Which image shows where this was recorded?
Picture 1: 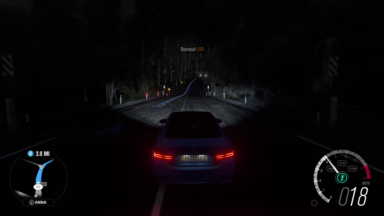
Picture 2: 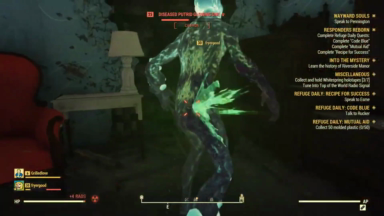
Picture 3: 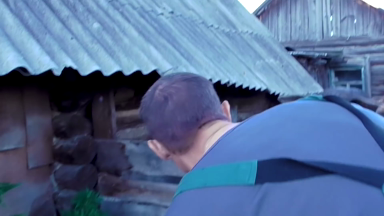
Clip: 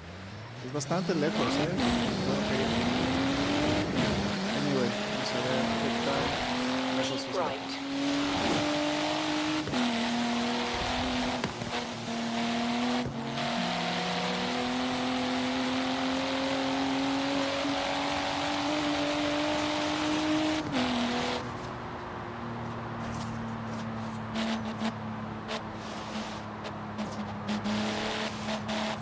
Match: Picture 1